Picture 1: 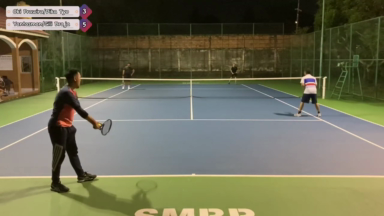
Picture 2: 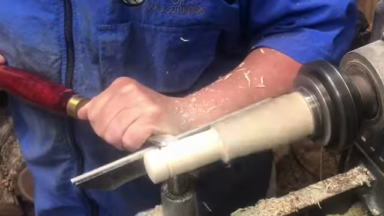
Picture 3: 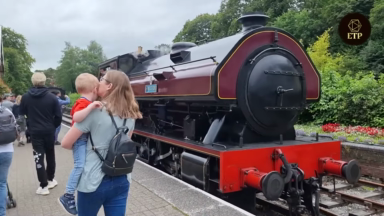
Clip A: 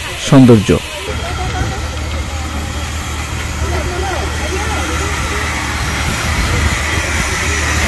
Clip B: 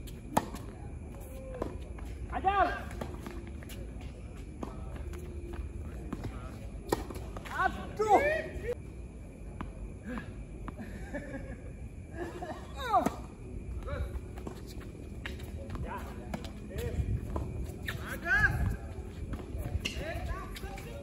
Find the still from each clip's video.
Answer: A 3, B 1